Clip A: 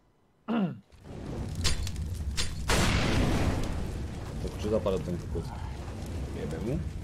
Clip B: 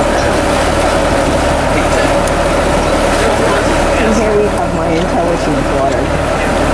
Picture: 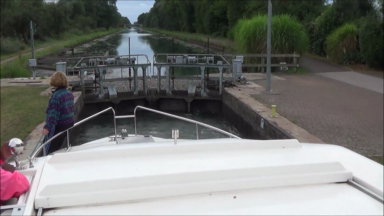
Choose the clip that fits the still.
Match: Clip B